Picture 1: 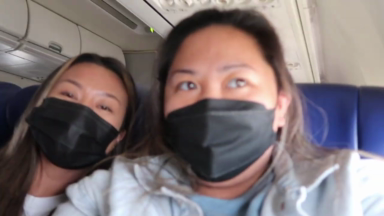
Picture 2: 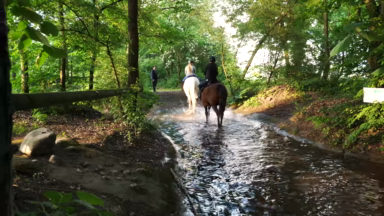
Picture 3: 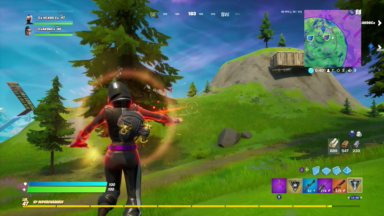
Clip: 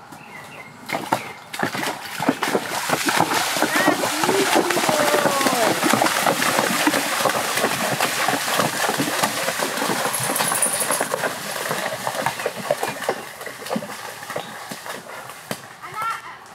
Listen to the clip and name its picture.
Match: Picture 2